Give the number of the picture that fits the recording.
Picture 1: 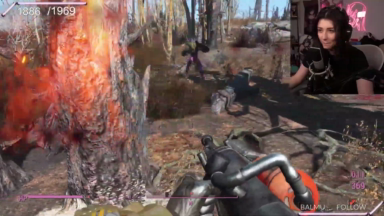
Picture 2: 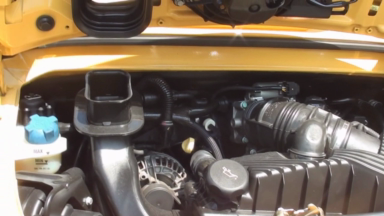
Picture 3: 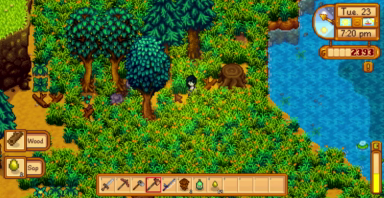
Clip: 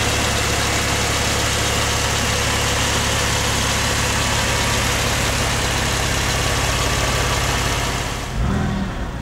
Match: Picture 2